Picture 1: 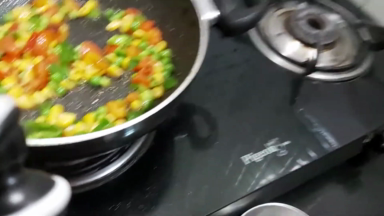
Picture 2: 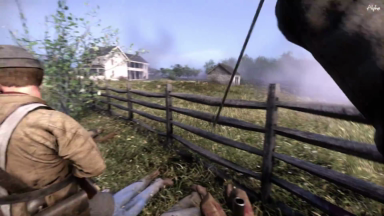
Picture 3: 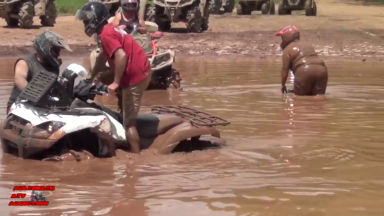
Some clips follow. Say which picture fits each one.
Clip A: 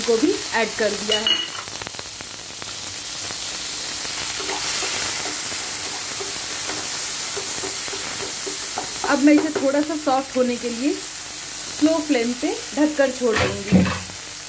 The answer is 1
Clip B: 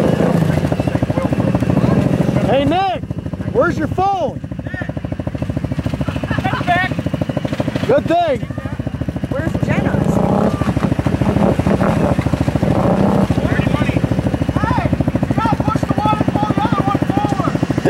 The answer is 3